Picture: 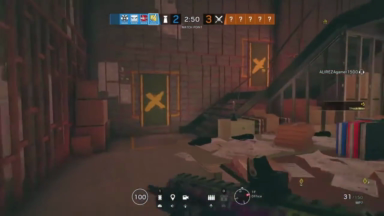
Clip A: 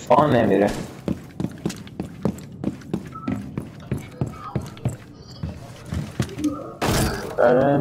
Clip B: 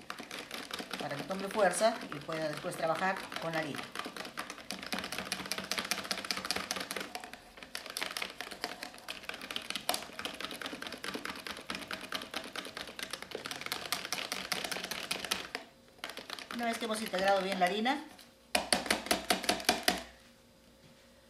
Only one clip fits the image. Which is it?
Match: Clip A